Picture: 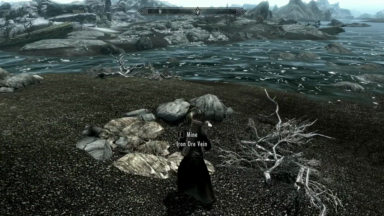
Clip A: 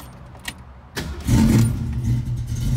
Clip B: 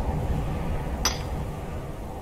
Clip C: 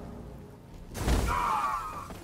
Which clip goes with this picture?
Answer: B